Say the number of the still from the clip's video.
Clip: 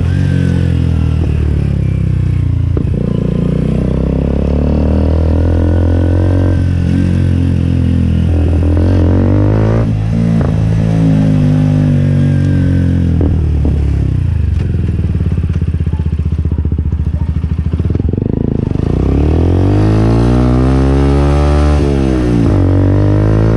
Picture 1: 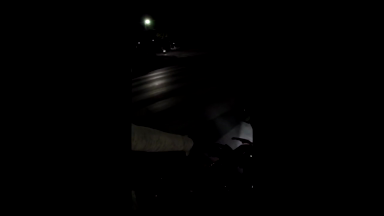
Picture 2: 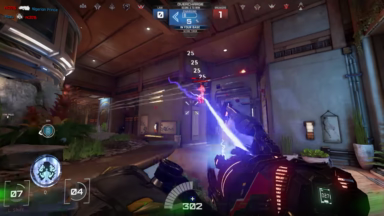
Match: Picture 1